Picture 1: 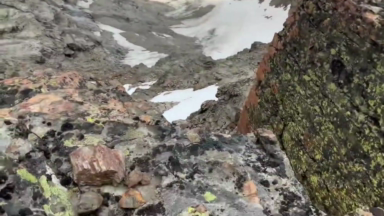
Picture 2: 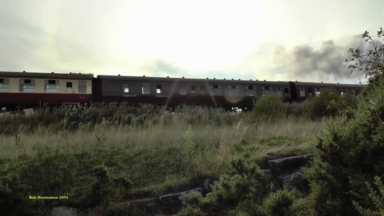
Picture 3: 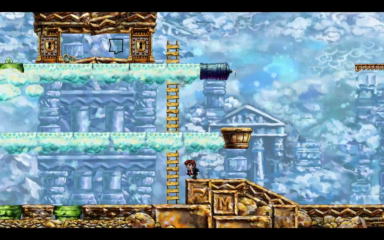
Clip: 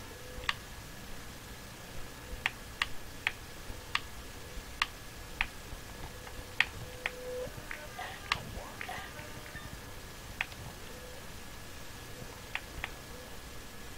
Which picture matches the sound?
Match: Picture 3